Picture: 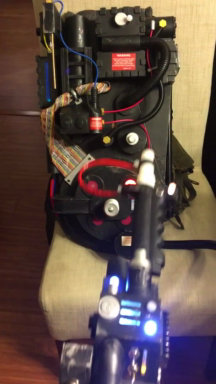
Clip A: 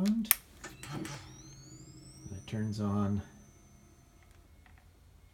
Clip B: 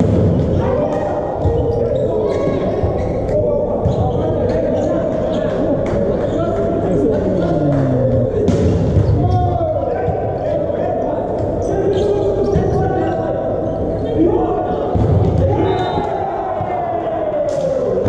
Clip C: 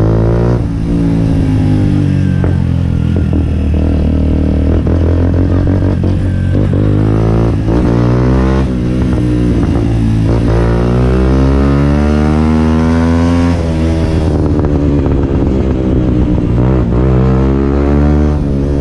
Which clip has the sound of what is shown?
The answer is A